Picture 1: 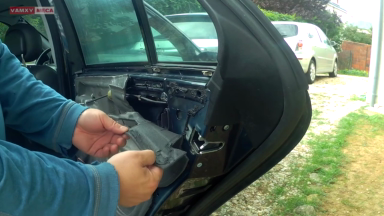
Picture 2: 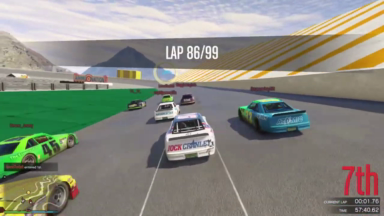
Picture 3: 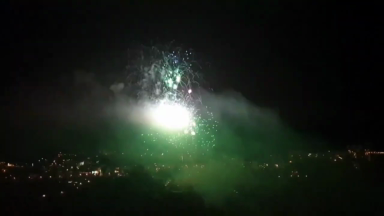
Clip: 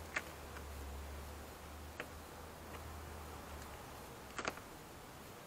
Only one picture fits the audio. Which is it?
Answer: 1